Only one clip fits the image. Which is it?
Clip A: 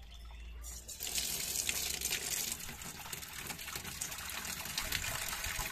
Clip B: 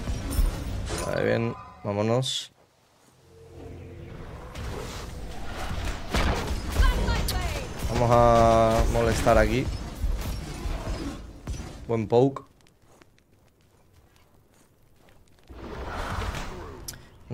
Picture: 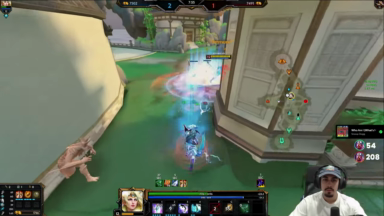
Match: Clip B